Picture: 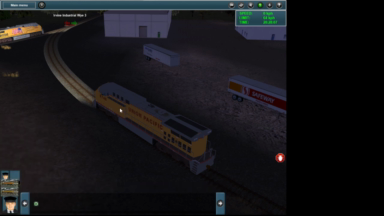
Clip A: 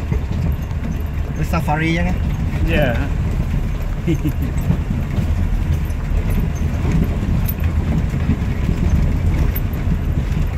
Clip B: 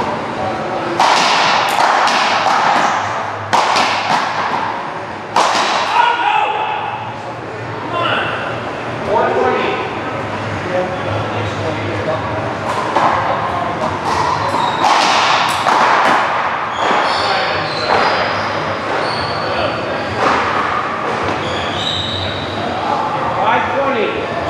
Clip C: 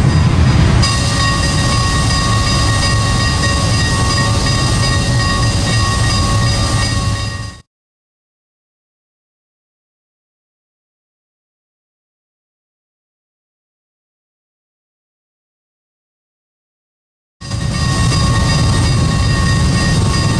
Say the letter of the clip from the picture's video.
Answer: C